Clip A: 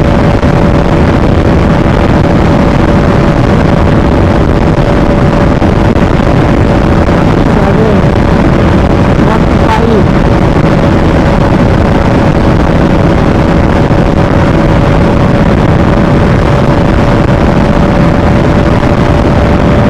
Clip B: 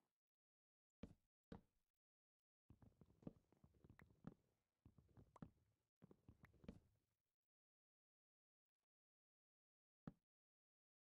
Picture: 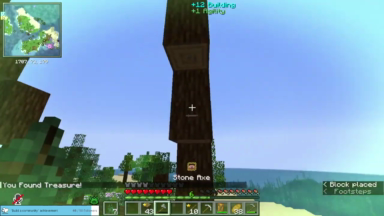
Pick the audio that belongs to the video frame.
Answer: B